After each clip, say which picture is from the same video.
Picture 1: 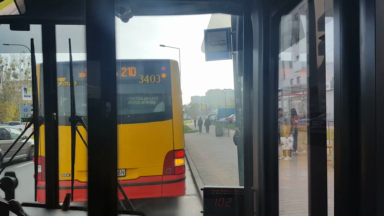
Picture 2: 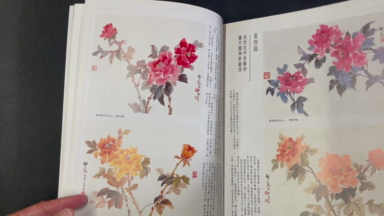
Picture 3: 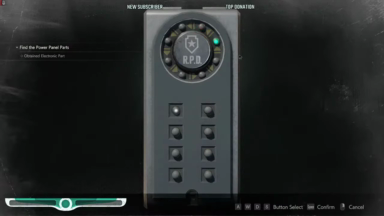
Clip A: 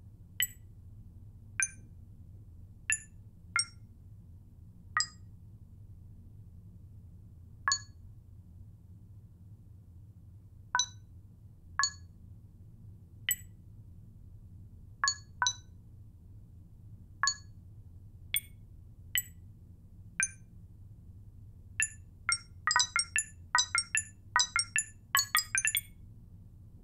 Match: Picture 3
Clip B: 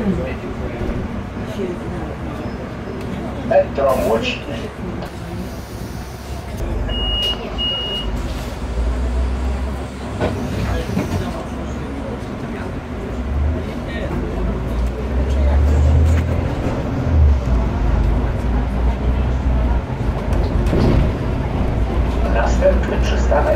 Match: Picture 1